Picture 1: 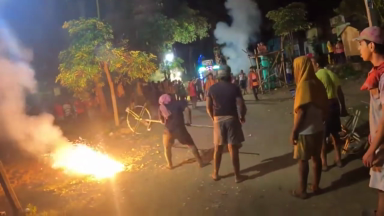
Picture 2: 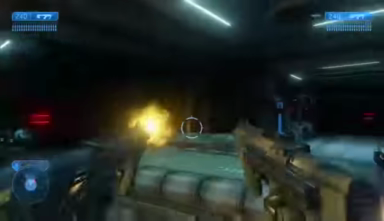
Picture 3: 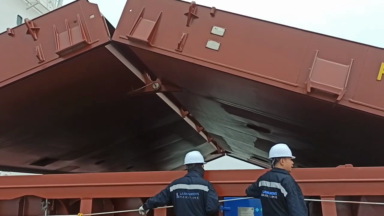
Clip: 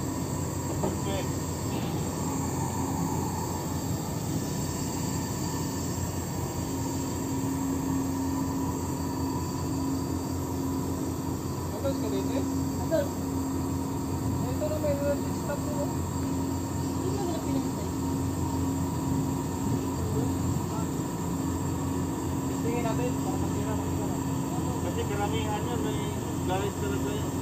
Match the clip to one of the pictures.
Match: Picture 3